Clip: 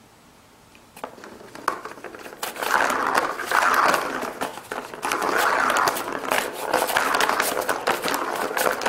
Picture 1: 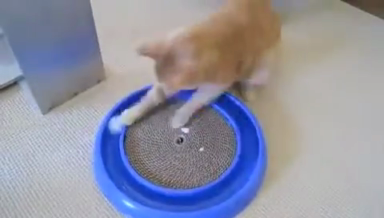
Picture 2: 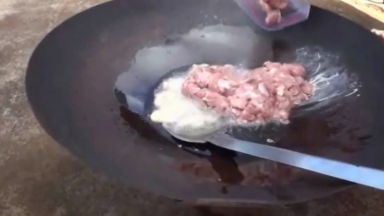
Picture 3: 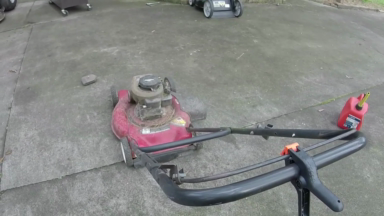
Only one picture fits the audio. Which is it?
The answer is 1